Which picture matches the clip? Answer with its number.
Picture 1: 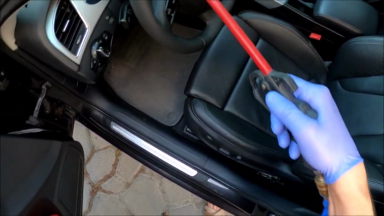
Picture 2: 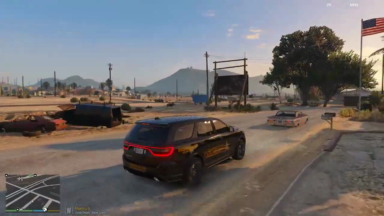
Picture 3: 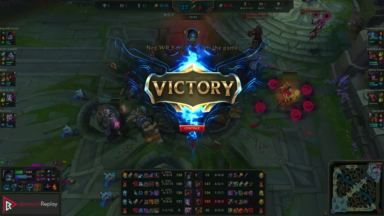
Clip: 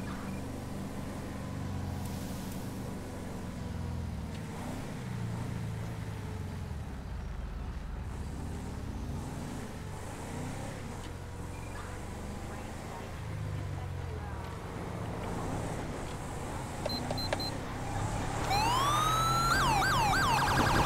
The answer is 2